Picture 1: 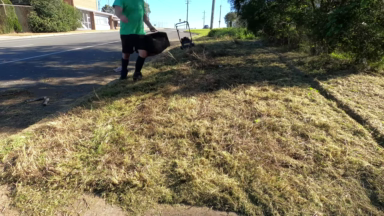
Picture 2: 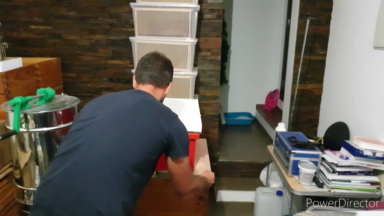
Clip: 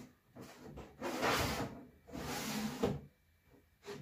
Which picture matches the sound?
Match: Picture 2